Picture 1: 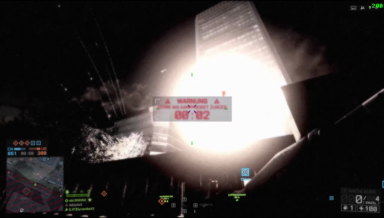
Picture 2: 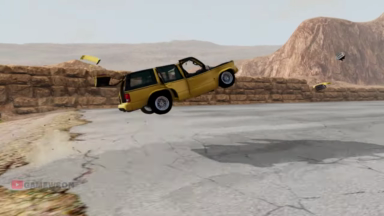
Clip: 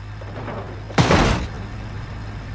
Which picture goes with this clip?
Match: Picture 2